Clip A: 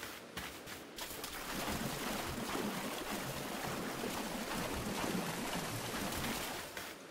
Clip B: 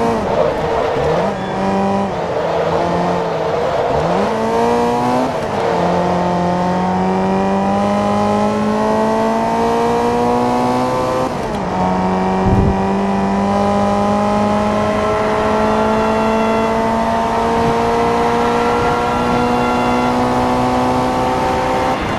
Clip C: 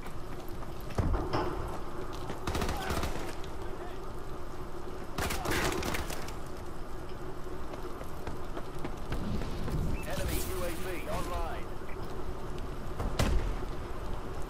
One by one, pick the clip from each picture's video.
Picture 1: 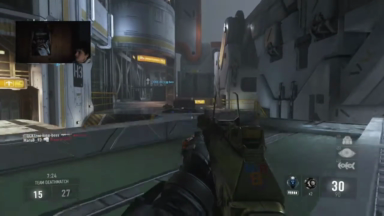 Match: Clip C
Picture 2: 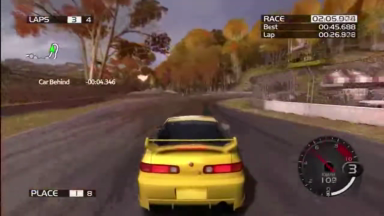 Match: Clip B